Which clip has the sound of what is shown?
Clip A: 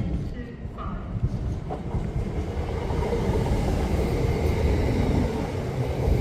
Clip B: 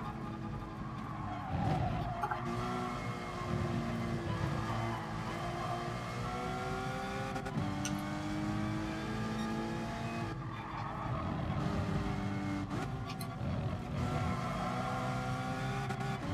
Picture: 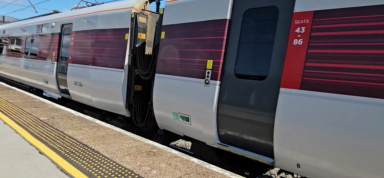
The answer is A